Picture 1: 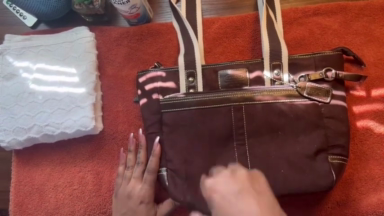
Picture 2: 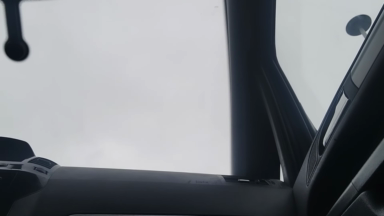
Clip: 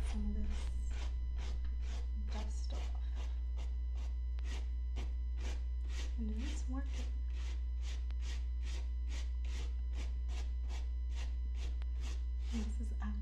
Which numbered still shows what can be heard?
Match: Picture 1